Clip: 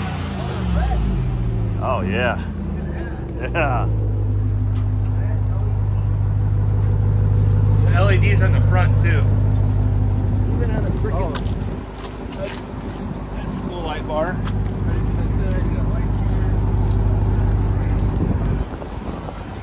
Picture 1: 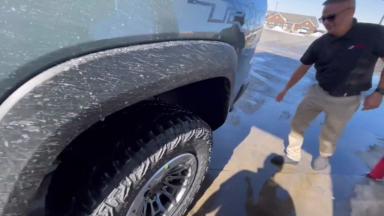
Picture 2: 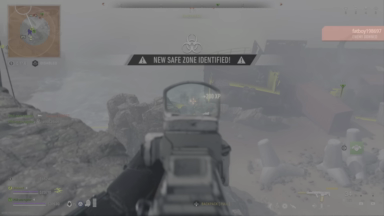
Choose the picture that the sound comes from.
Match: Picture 1